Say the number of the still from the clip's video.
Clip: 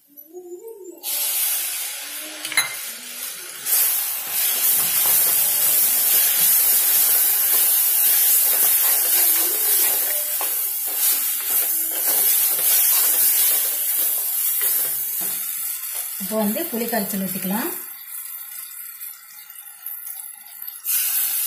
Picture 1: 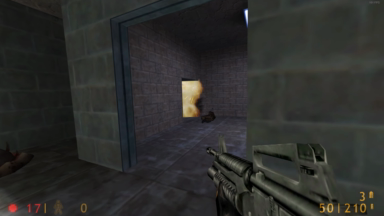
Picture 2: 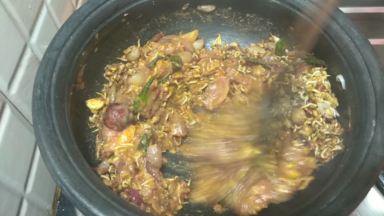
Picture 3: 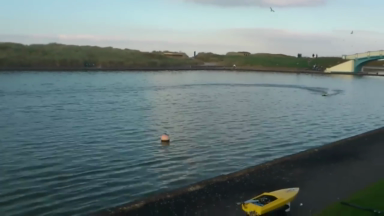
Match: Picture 2